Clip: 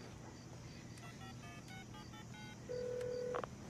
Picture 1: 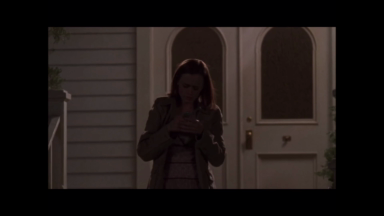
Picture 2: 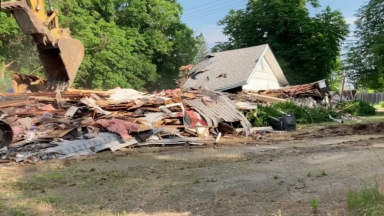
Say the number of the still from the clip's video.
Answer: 1